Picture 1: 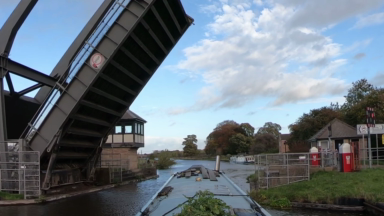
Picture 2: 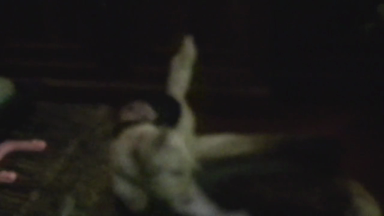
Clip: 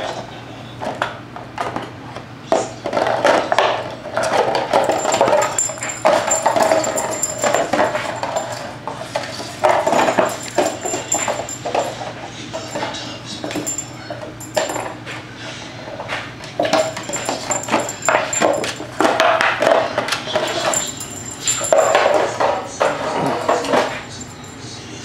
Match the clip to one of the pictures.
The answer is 2